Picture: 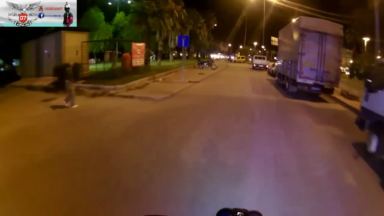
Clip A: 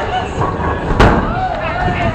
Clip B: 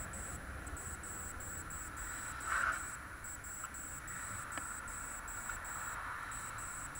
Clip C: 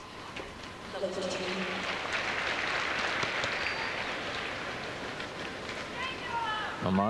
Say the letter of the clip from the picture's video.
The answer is B